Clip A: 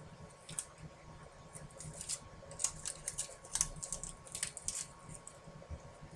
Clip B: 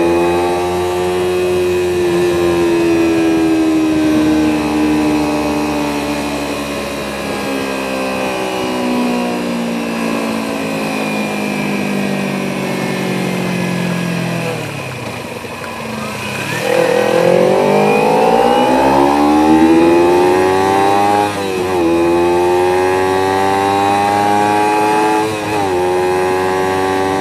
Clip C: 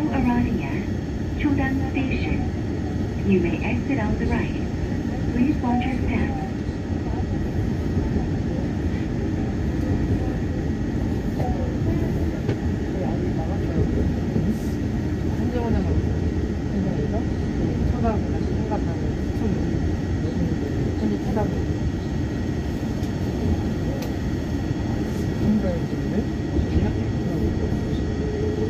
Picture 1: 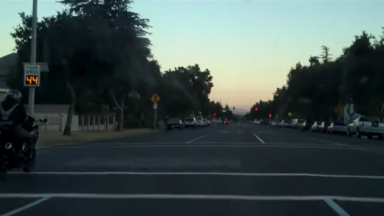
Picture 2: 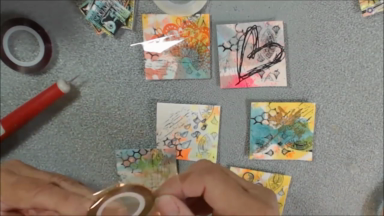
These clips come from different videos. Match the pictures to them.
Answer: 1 B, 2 A